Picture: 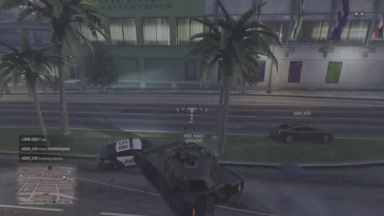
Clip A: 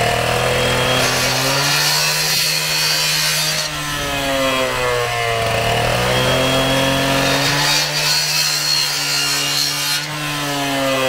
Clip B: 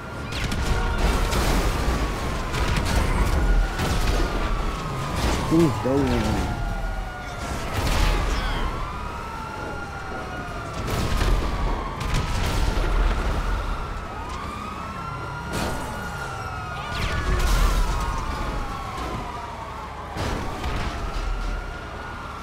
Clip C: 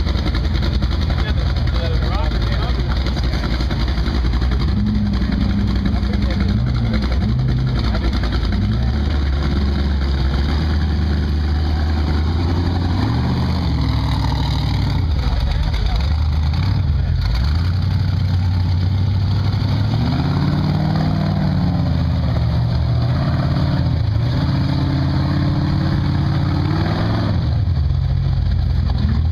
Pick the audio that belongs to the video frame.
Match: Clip B